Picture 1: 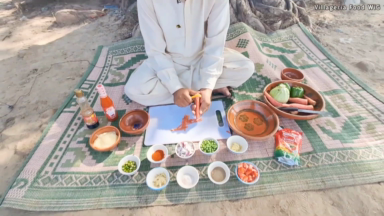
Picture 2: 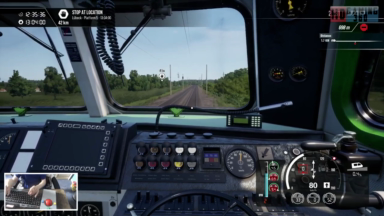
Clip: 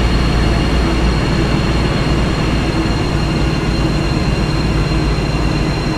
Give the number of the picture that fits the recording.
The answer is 2